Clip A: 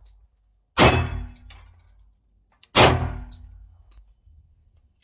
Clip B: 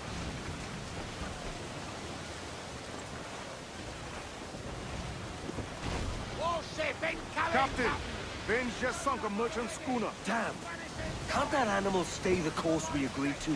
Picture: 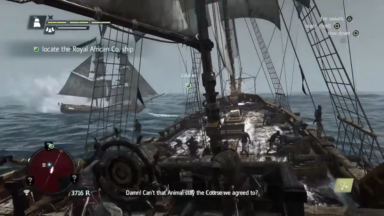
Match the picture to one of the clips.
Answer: B